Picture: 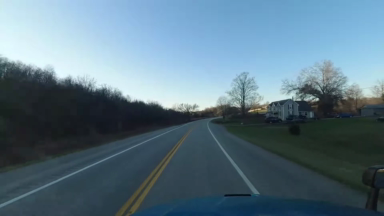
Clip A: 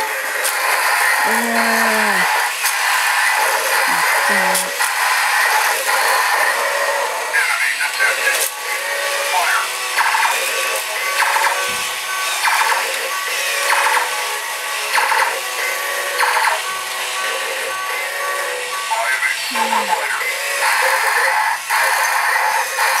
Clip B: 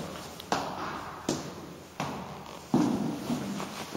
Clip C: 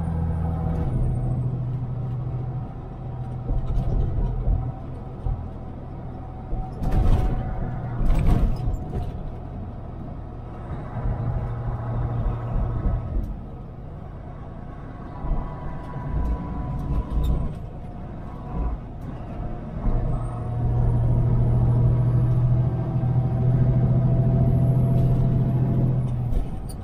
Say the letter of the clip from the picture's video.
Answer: C